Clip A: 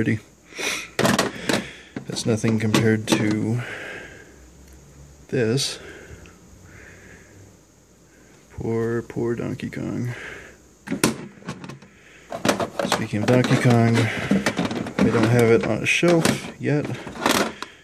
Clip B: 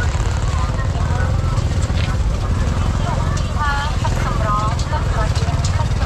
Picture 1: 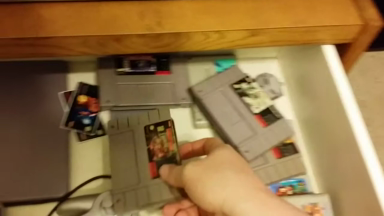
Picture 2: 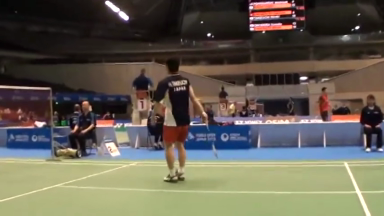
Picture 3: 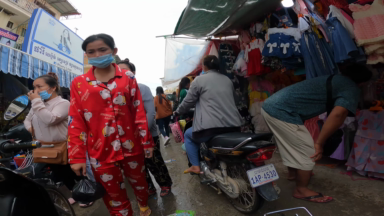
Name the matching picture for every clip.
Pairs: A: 1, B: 3